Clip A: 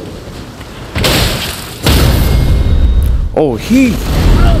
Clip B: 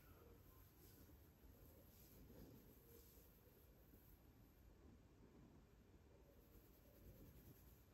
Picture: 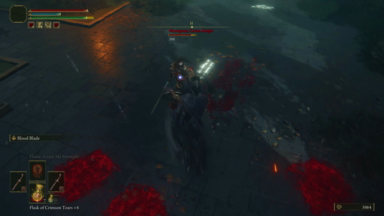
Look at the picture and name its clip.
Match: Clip A